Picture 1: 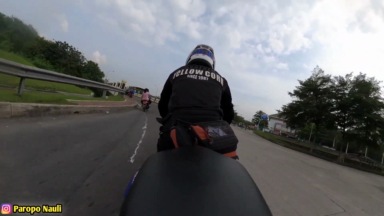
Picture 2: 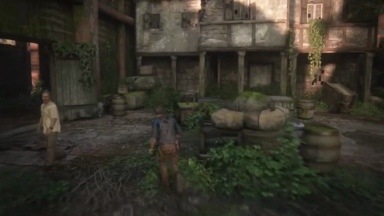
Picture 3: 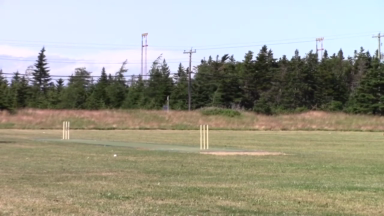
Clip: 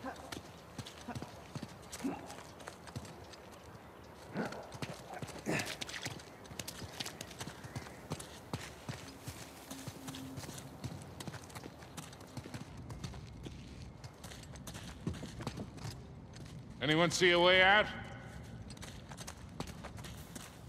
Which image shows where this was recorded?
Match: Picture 2